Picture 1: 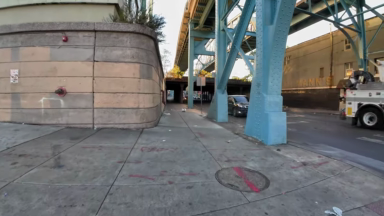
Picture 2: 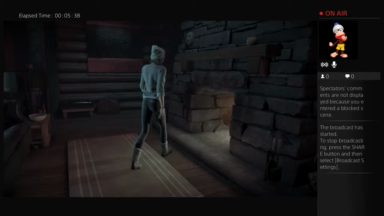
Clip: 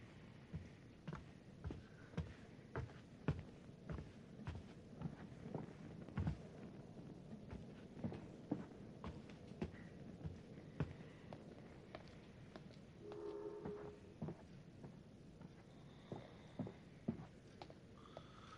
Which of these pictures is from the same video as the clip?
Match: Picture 2